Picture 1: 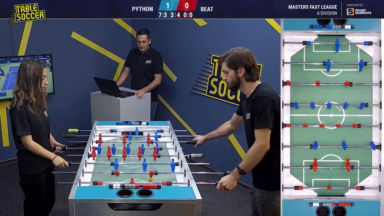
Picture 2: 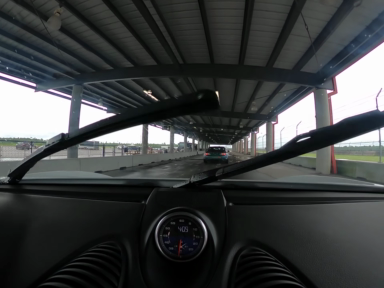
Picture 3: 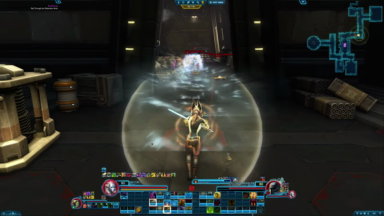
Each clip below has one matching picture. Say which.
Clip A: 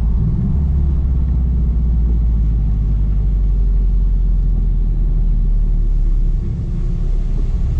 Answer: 2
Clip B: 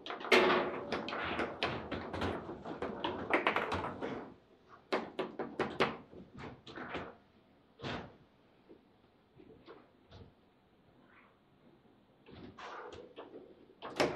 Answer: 1